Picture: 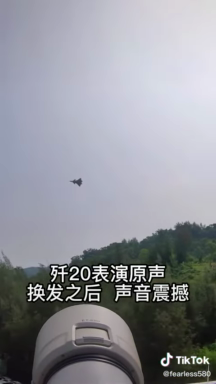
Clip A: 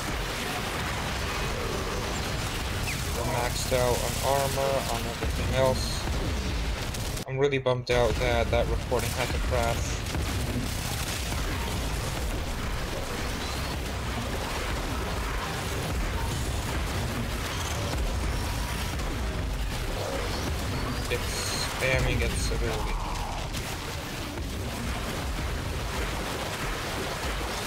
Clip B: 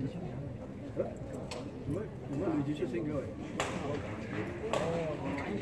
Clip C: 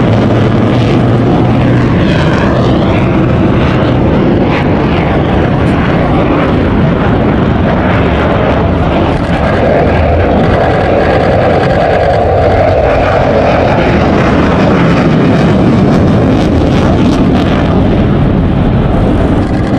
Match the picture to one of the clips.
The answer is C